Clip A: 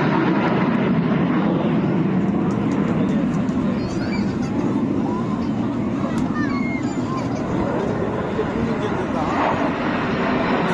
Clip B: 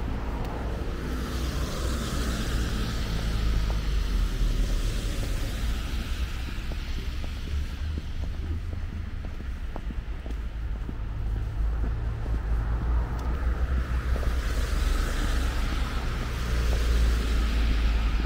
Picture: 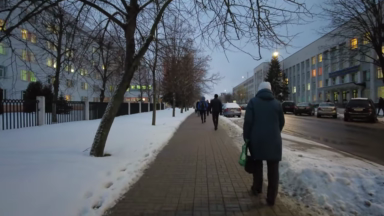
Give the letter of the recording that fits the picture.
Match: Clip B